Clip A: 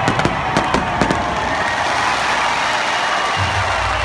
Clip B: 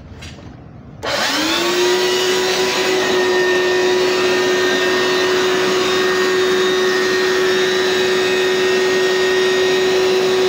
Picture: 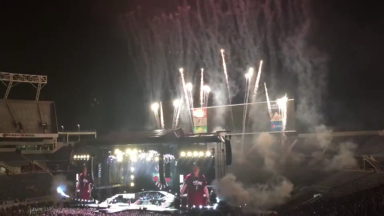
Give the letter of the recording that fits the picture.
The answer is A